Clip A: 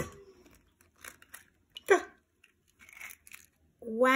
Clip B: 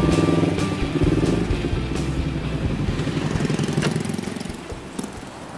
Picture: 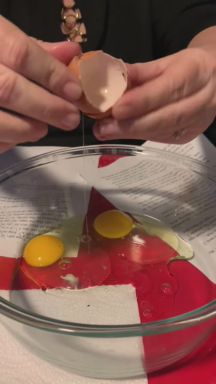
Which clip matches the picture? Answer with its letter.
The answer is A